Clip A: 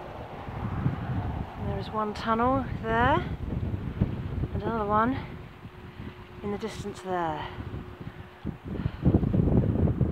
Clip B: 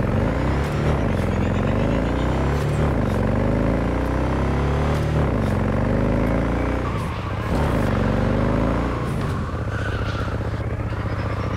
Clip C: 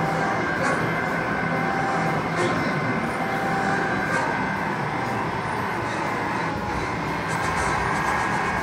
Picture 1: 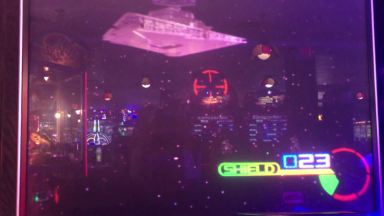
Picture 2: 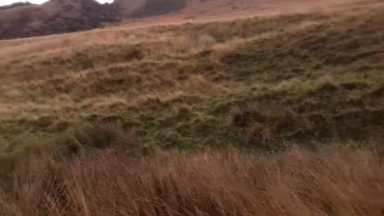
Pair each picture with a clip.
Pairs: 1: C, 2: A